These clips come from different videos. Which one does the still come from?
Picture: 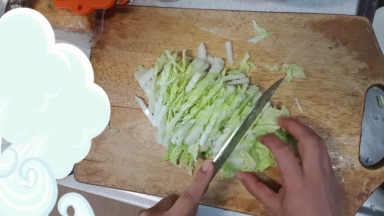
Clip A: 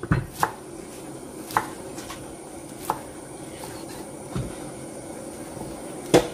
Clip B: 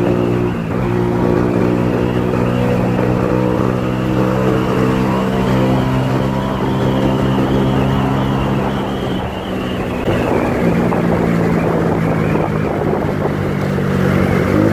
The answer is A